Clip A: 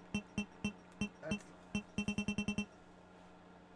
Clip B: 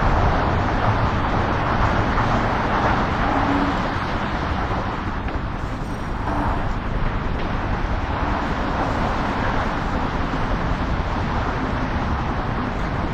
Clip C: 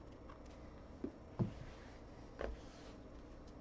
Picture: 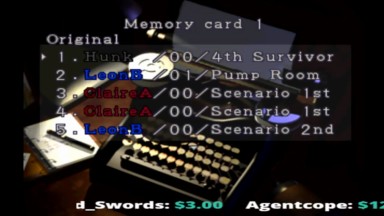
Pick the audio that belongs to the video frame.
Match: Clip A